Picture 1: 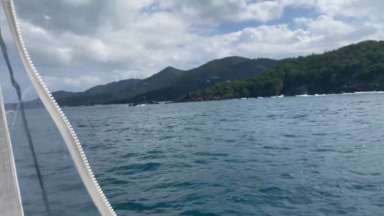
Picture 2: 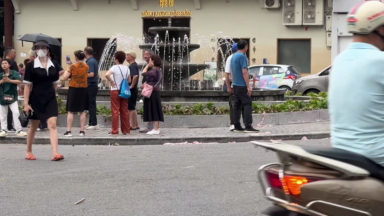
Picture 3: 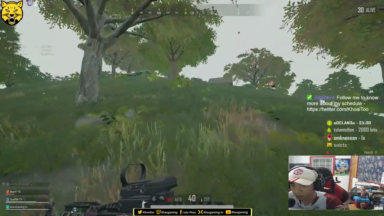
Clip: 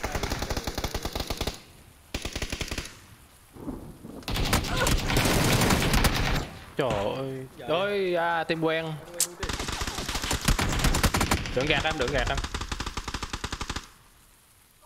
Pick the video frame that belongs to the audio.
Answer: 3